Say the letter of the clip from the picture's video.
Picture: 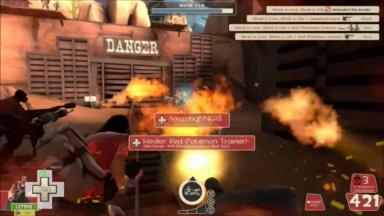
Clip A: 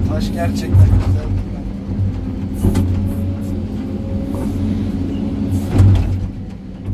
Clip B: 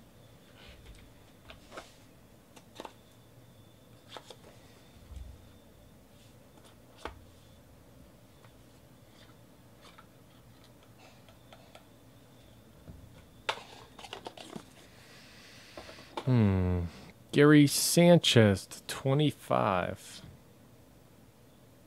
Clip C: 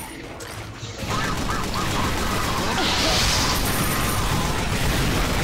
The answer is C